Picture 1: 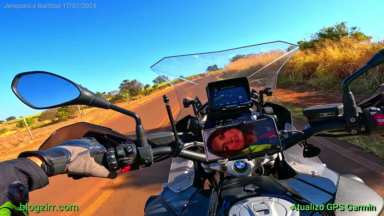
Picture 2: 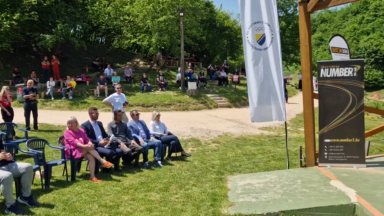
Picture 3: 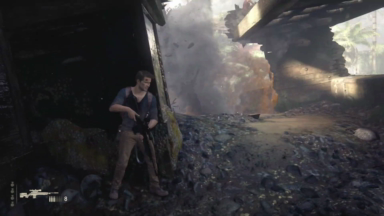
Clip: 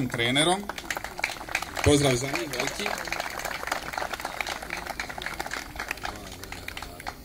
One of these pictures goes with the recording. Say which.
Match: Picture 2